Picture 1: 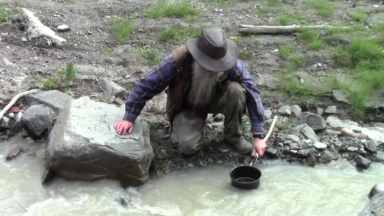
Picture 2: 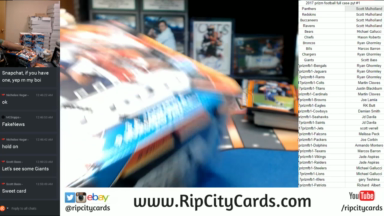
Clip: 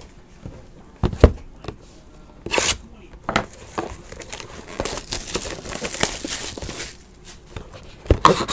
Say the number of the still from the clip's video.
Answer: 2